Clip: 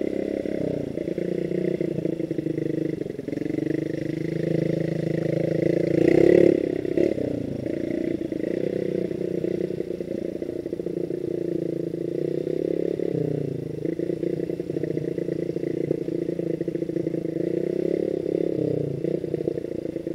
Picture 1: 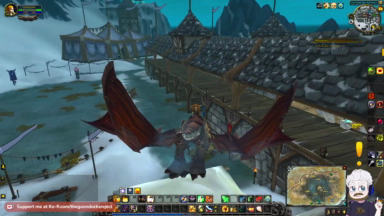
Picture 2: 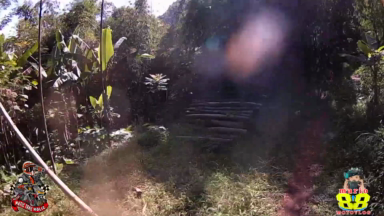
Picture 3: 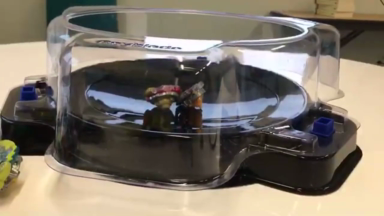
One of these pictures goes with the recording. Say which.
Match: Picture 2